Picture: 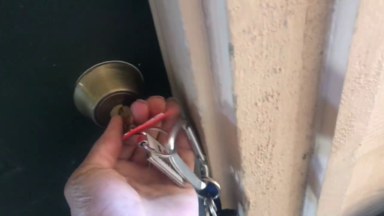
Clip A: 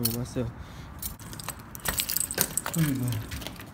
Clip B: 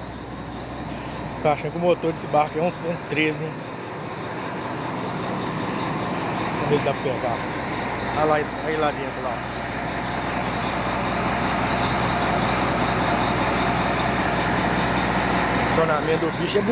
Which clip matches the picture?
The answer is A